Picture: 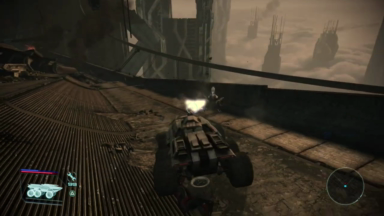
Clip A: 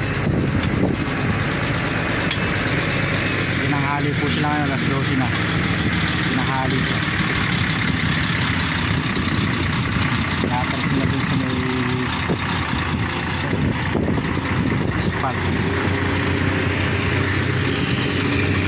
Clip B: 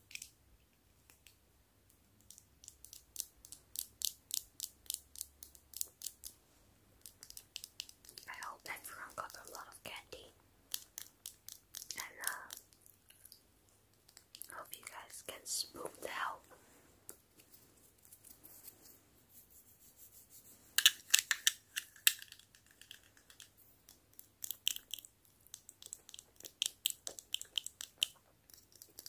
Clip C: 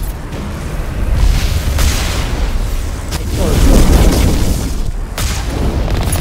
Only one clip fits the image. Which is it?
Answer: C